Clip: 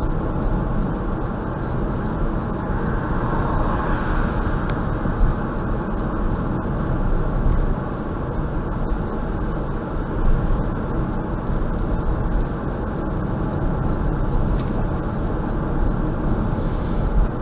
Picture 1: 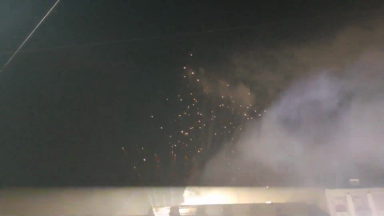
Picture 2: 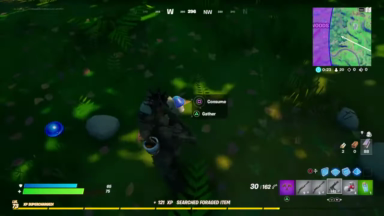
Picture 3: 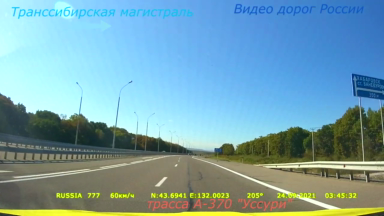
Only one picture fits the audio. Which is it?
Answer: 3